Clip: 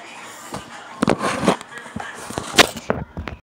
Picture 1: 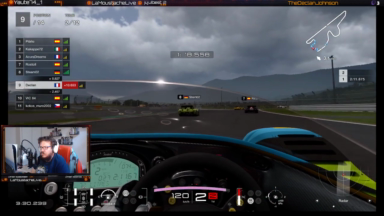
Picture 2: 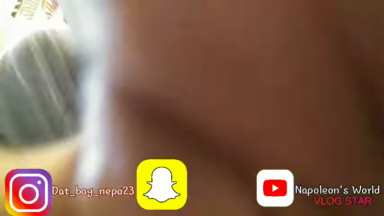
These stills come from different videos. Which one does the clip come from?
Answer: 2